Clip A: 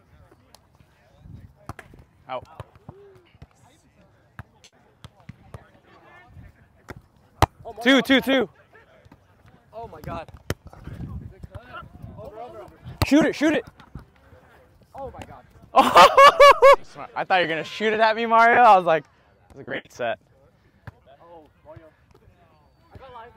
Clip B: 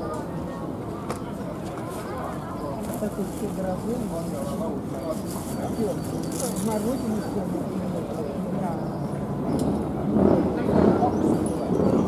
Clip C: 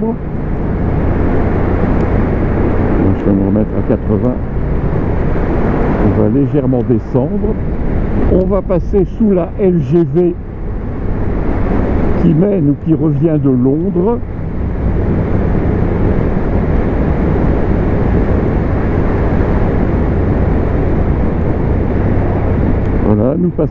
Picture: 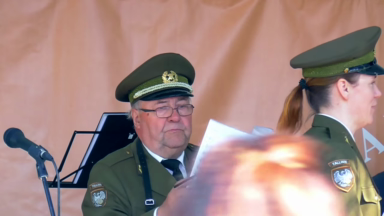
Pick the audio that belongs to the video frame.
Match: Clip B